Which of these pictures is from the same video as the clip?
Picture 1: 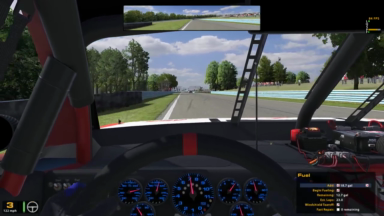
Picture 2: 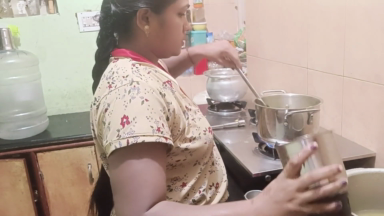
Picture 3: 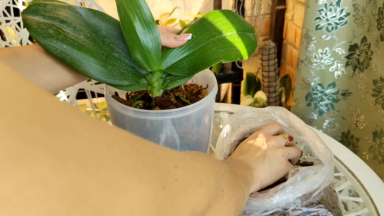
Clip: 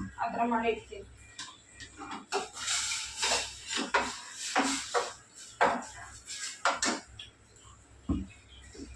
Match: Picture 2